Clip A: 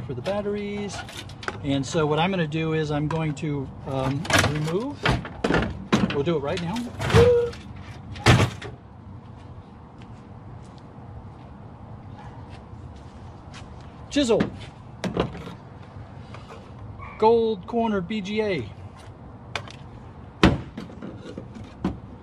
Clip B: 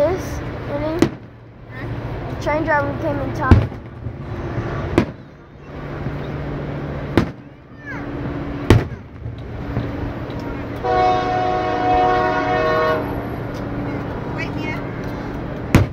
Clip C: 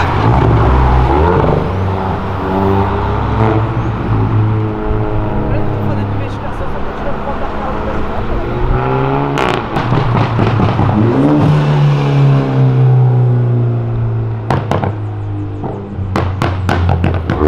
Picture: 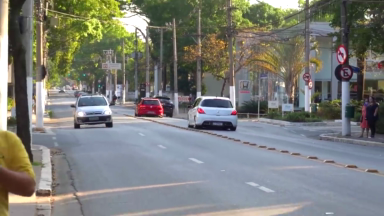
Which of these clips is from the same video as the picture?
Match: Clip C